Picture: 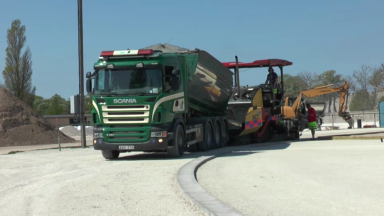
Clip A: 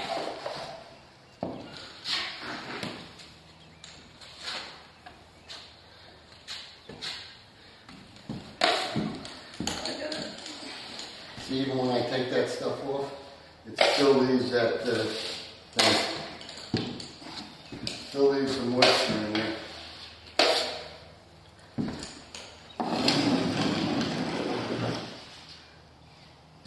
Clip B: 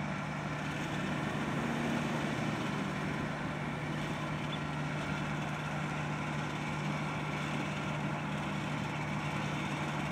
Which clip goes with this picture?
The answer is B